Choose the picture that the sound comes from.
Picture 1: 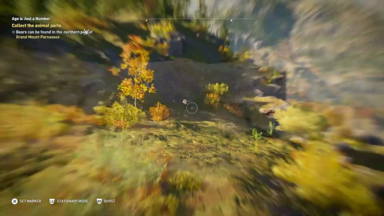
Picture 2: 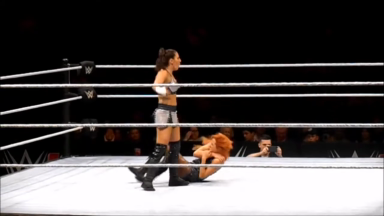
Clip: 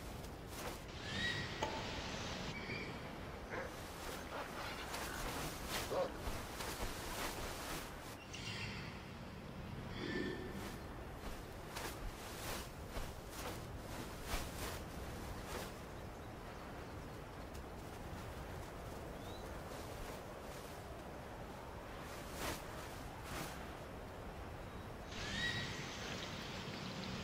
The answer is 1